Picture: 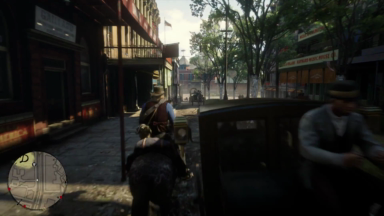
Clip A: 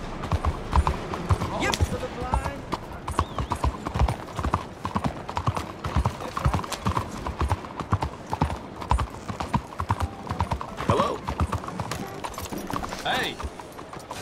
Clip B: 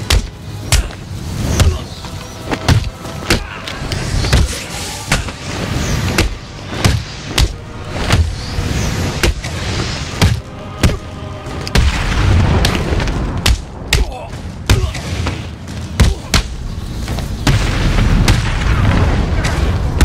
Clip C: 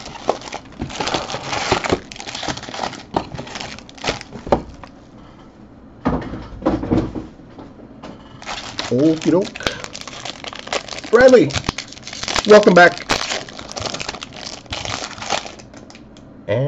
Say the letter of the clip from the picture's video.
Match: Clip A